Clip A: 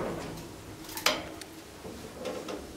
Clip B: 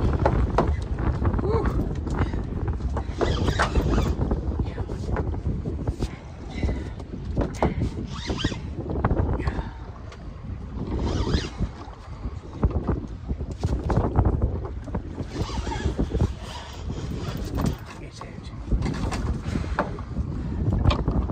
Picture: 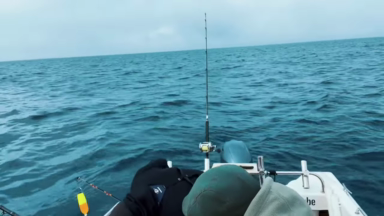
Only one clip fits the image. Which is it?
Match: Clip B